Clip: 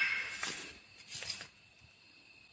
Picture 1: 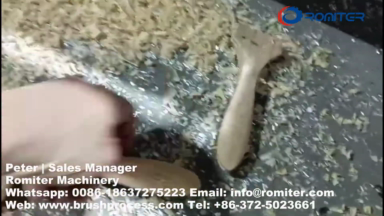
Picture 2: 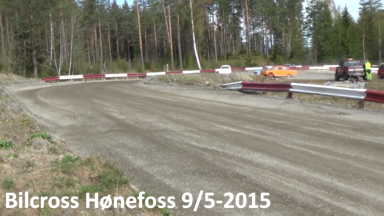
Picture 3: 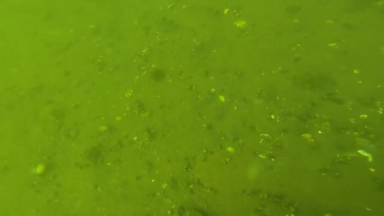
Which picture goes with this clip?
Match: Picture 1